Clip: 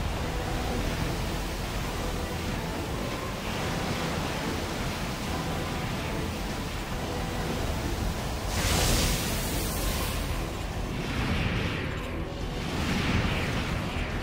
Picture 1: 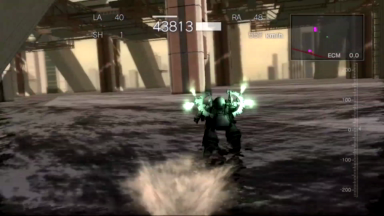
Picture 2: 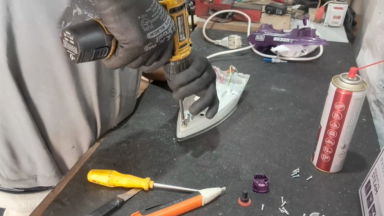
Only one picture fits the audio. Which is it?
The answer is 1